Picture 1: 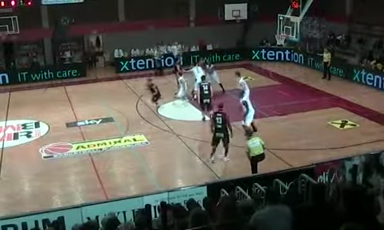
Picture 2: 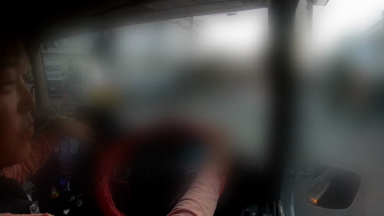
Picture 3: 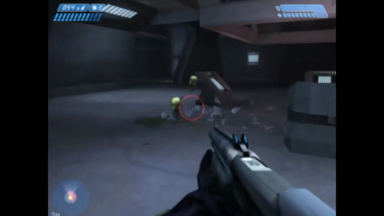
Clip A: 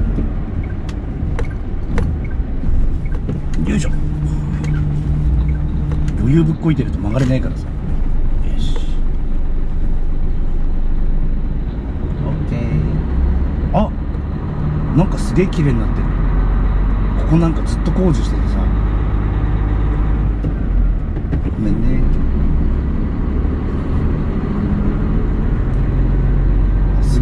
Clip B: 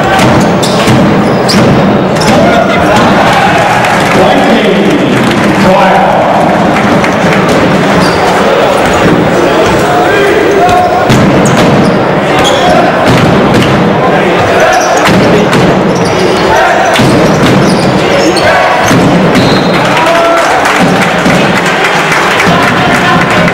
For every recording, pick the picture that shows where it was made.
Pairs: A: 2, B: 1